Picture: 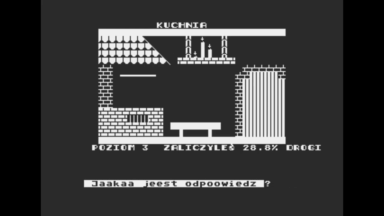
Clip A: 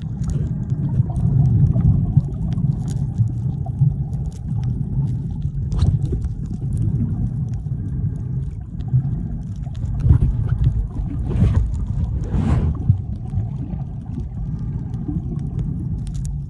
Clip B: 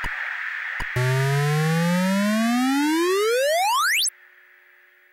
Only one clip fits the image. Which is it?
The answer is B